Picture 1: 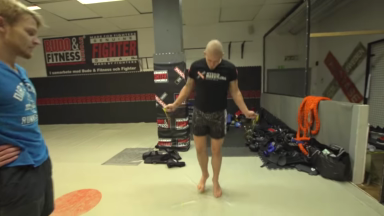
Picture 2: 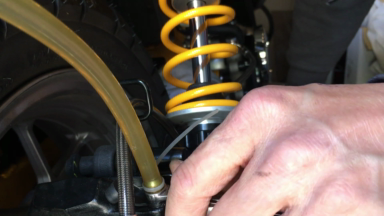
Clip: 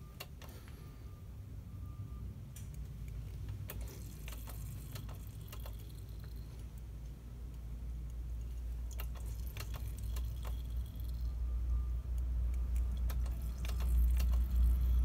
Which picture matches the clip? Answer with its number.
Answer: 2